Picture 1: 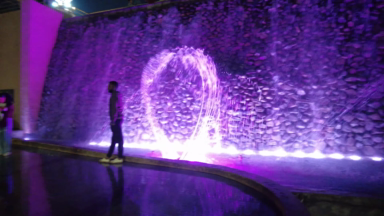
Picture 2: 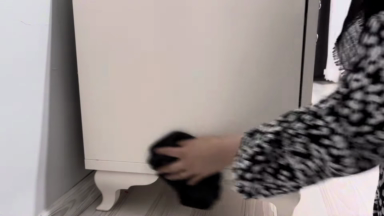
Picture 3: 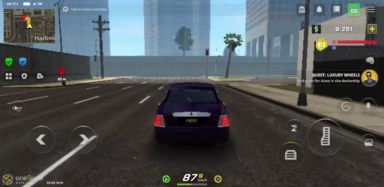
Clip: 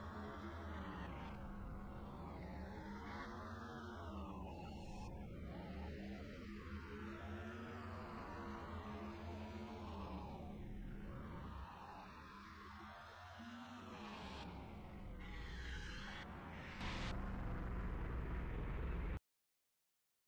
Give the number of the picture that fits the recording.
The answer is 3